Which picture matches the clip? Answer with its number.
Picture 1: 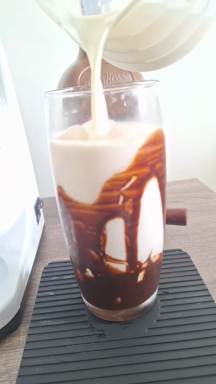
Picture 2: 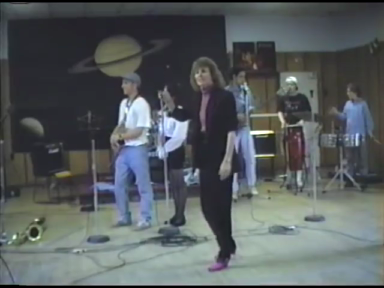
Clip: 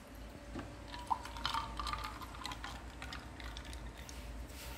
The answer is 1